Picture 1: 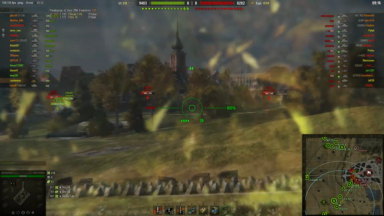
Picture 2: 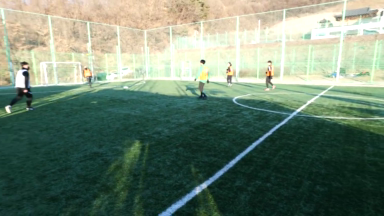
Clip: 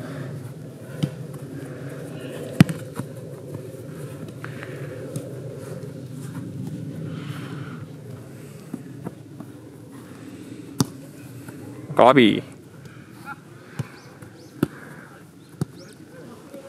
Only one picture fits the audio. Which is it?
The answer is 2